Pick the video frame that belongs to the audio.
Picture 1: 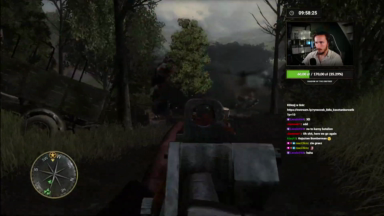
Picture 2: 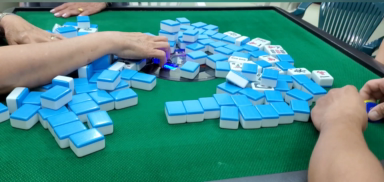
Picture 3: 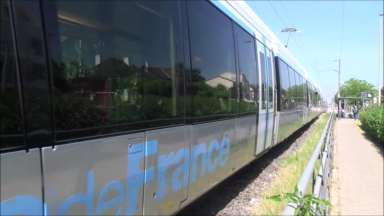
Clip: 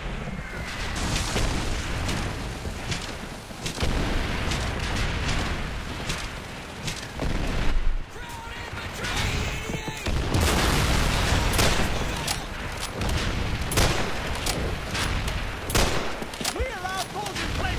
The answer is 1